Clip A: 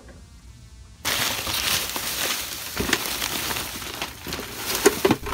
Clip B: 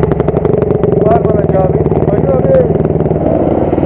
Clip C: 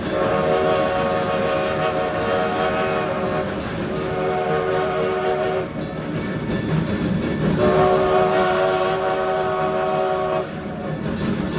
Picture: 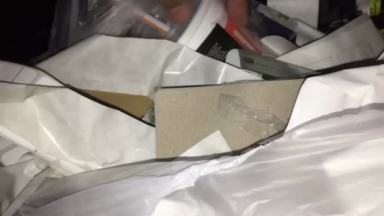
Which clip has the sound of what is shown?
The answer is A